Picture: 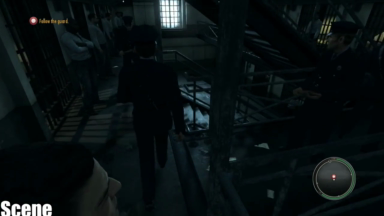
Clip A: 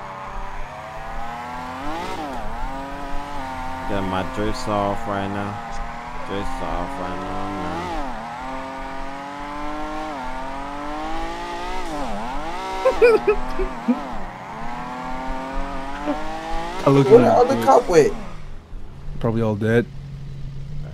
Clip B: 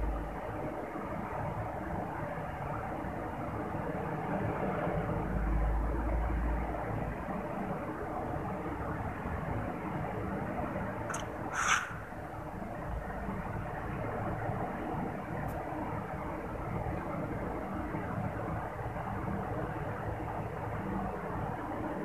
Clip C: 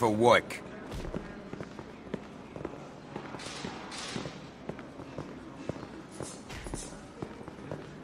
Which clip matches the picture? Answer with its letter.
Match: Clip C